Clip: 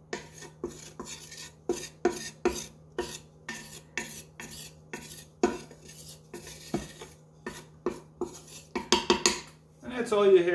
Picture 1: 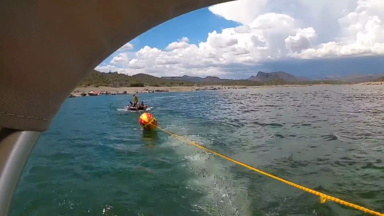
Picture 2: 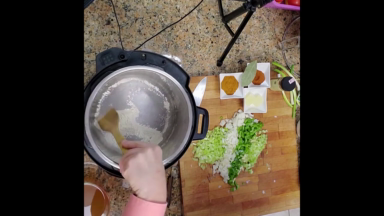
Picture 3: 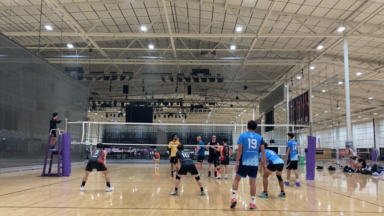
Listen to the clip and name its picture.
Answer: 2